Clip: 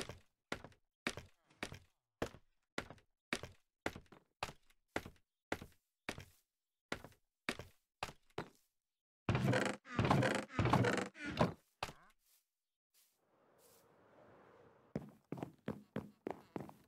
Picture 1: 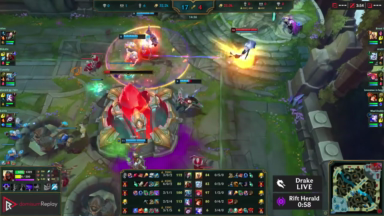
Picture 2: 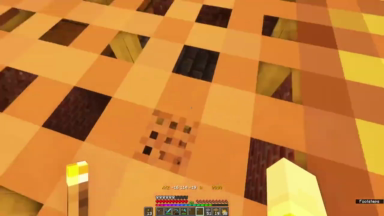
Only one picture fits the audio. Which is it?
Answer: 2